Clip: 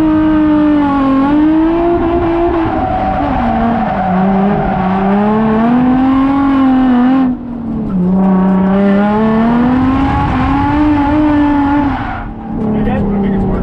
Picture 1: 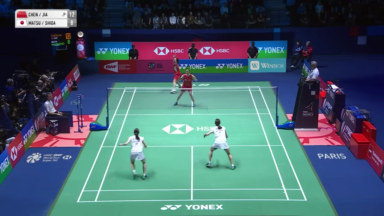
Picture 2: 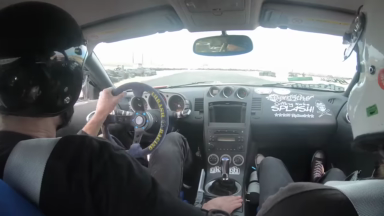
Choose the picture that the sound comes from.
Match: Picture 2